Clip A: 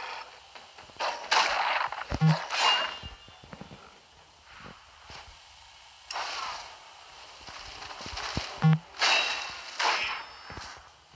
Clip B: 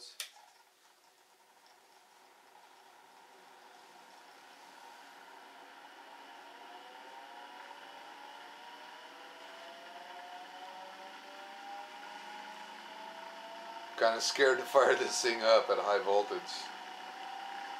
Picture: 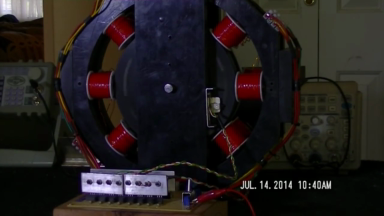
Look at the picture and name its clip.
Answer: B